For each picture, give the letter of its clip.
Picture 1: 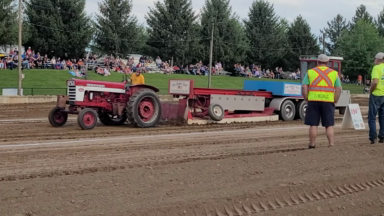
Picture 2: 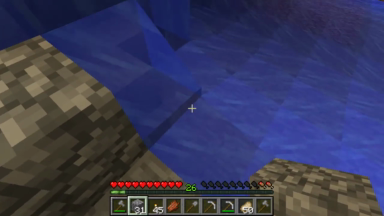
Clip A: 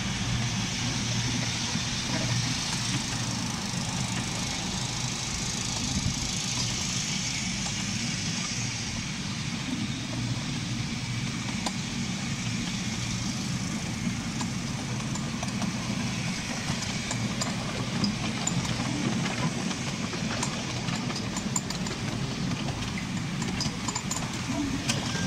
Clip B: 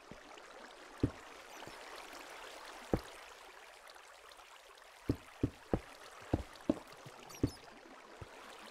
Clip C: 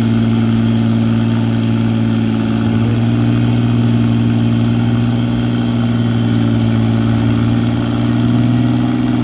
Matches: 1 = C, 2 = B